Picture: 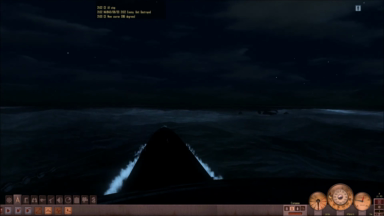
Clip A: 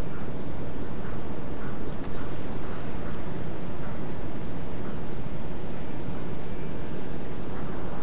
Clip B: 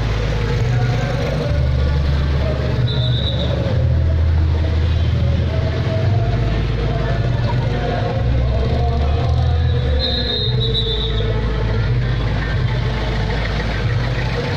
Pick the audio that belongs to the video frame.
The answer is A